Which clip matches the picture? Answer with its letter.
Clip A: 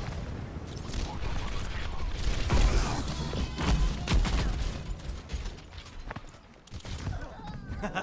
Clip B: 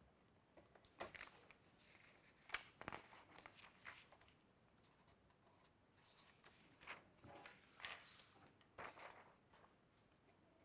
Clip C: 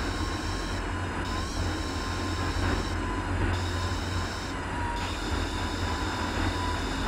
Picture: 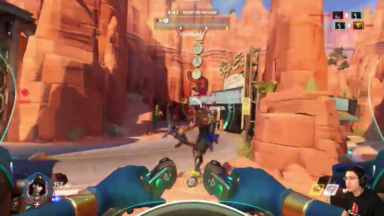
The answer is A